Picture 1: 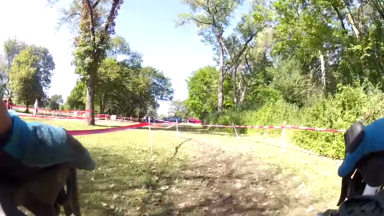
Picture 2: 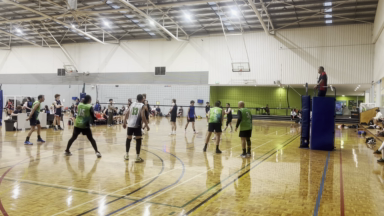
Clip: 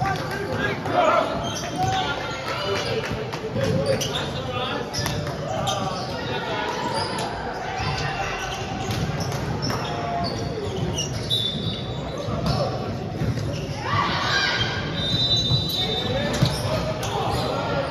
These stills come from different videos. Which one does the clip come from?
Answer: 2